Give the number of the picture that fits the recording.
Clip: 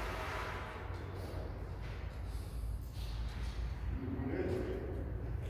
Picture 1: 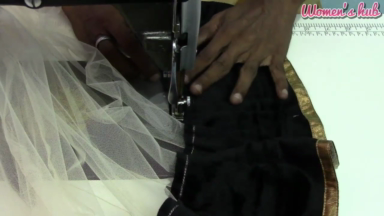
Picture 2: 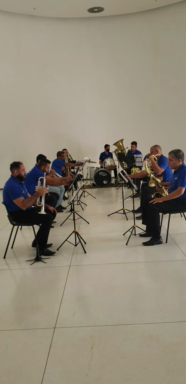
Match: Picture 2